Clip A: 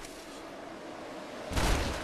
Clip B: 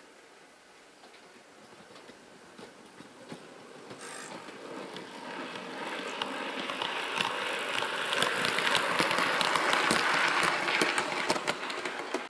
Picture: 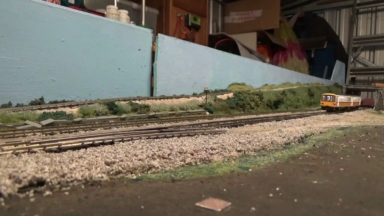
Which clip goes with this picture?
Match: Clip B